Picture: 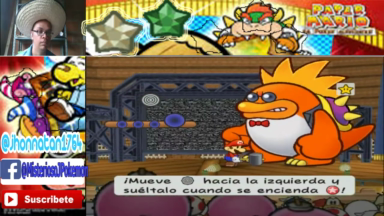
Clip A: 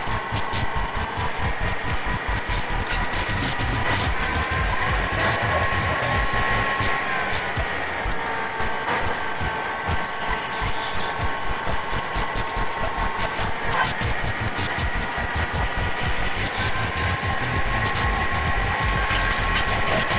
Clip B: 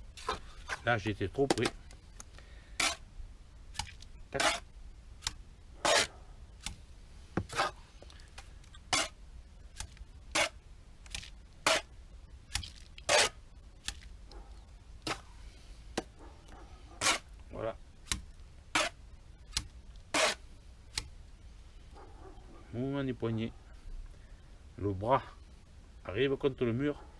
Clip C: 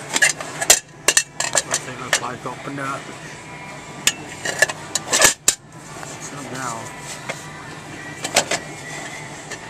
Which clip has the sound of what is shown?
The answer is A